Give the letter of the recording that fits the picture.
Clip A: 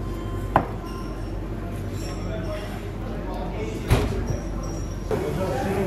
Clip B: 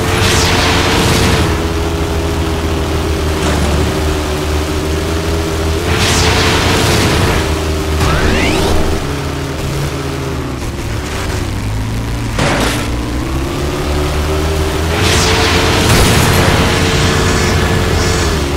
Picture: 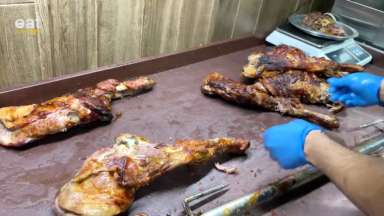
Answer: A